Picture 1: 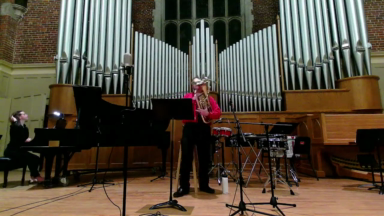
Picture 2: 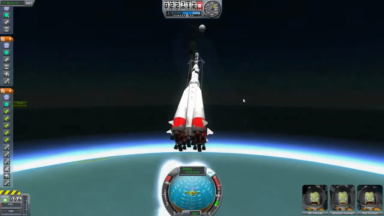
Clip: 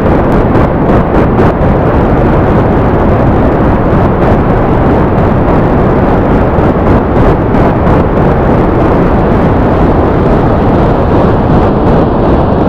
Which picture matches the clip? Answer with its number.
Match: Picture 2